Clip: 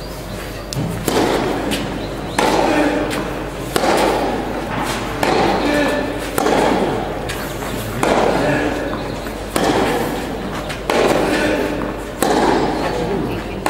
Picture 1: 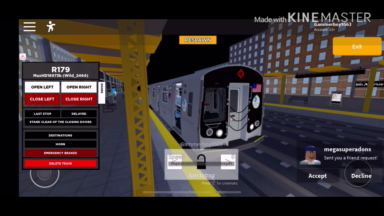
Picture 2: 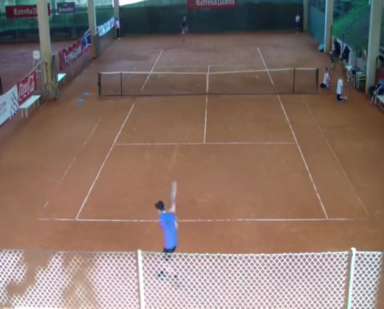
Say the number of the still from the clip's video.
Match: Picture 2